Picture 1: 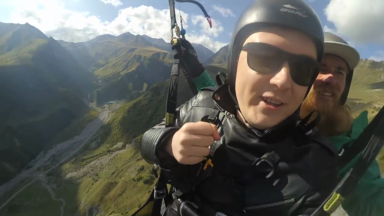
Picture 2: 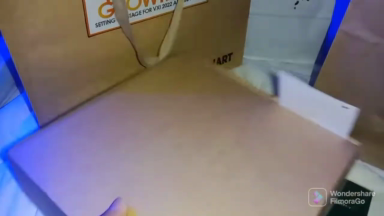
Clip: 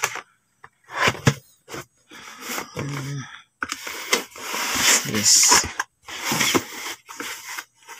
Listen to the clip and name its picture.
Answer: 2